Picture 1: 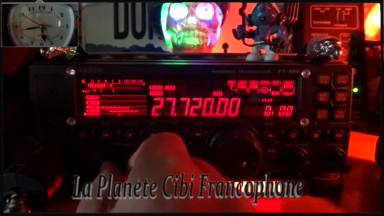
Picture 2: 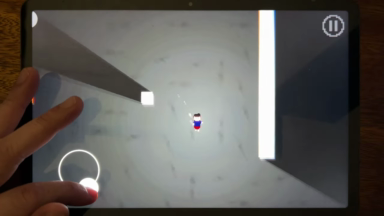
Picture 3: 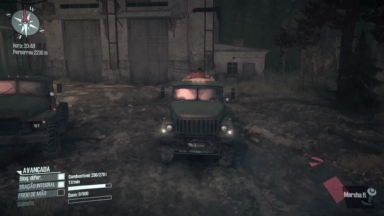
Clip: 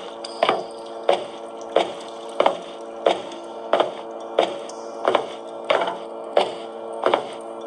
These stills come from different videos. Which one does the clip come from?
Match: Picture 2